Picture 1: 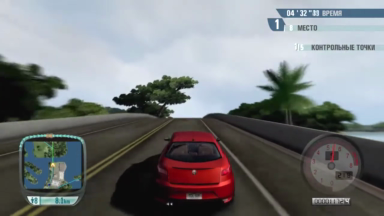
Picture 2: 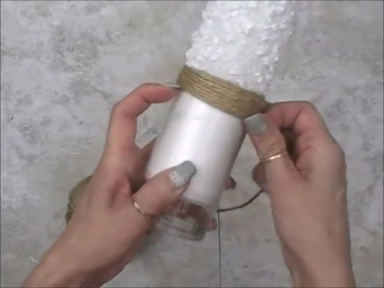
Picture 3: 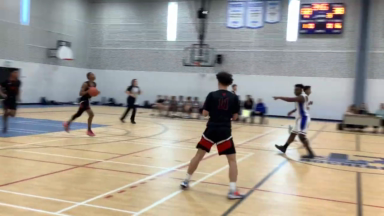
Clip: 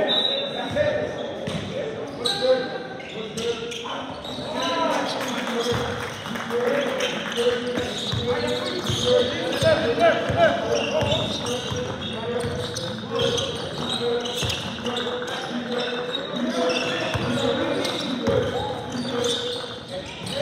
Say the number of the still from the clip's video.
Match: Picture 3